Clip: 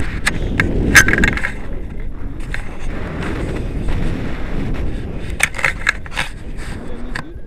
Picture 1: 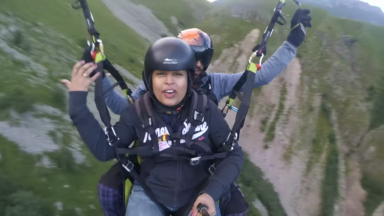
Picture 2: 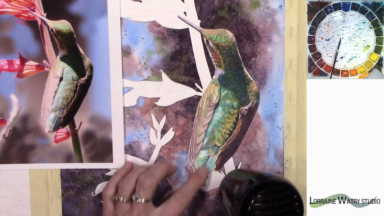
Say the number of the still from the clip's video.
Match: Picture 1